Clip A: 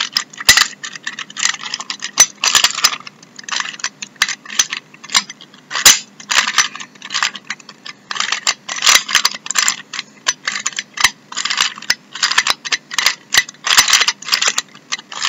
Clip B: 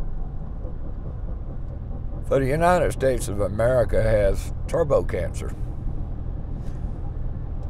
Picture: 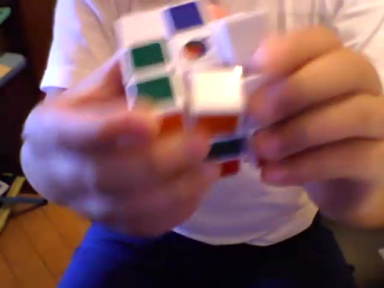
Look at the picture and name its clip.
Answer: A